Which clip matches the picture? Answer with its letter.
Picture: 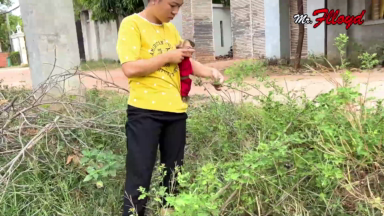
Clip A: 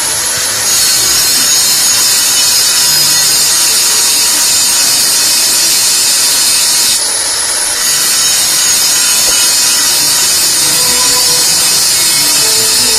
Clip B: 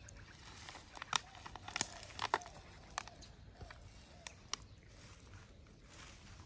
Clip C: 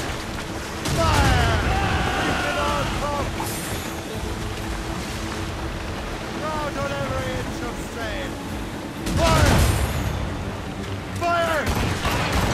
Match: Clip B